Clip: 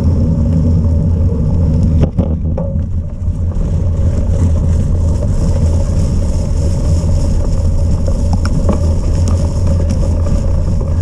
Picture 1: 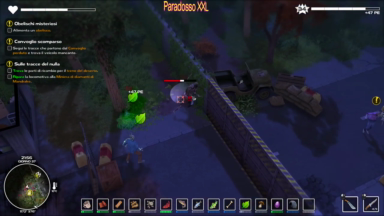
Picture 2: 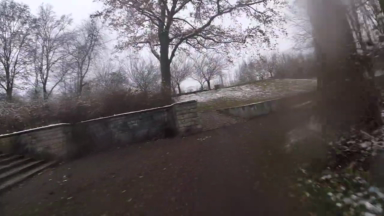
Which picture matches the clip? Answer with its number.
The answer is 2